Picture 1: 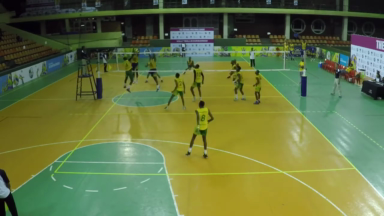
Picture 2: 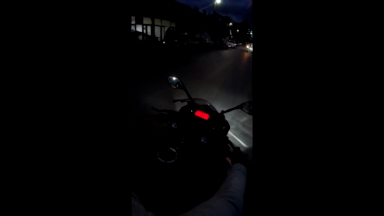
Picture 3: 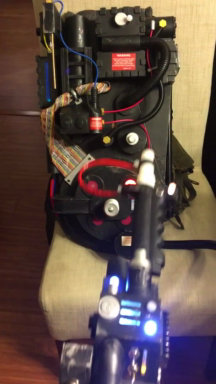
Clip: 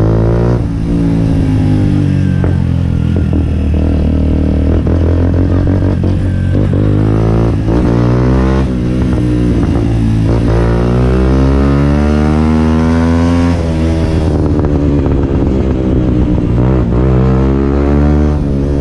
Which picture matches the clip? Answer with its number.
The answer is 2